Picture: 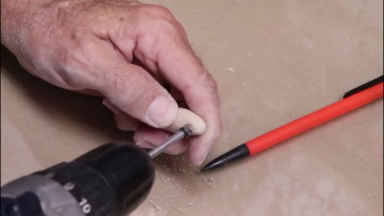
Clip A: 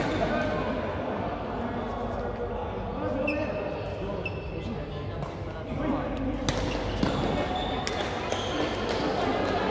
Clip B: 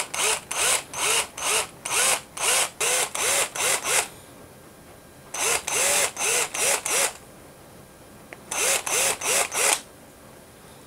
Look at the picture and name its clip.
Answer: B